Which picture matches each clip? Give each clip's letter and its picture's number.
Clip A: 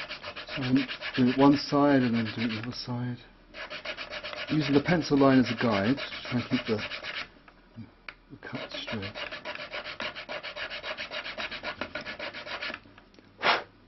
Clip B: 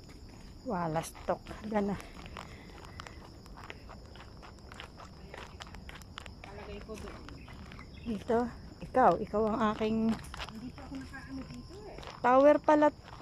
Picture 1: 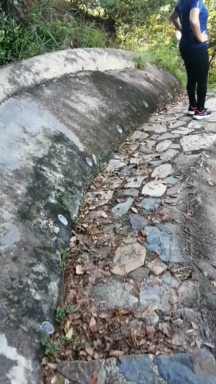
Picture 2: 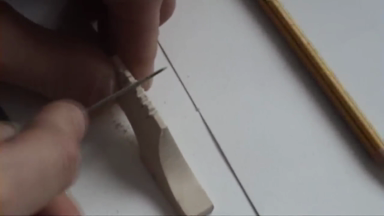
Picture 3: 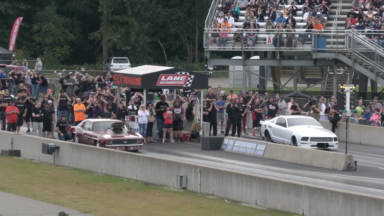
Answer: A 2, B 1